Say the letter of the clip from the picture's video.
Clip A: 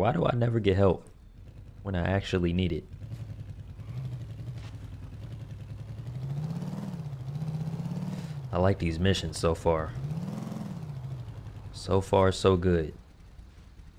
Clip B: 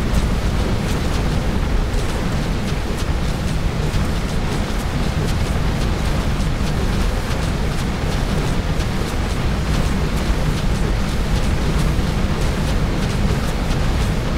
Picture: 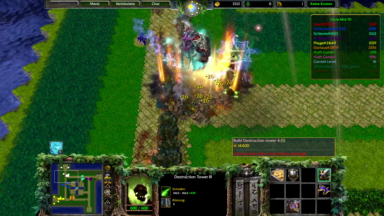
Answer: B